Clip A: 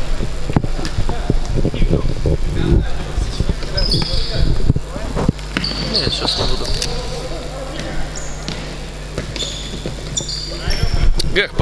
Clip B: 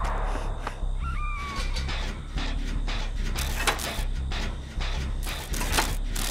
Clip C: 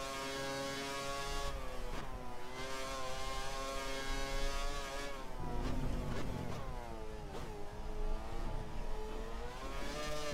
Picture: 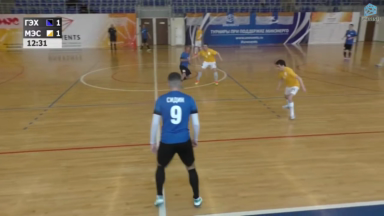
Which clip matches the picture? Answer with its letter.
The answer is A